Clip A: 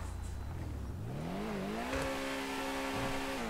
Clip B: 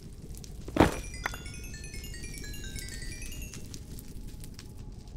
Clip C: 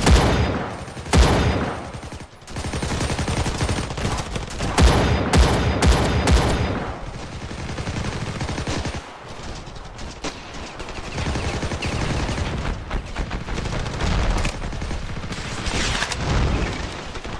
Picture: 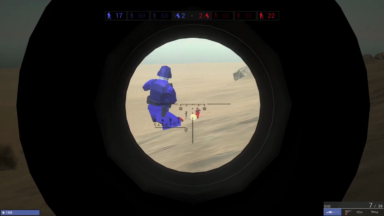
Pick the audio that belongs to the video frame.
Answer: C